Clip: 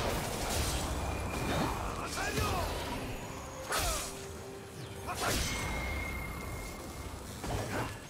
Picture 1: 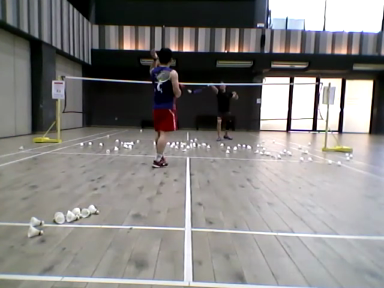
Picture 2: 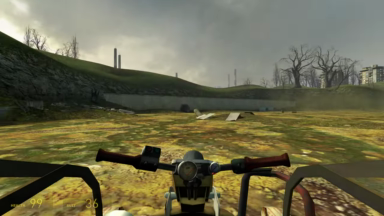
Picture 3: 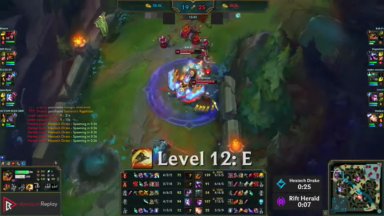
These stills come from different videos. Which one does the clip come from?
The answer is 3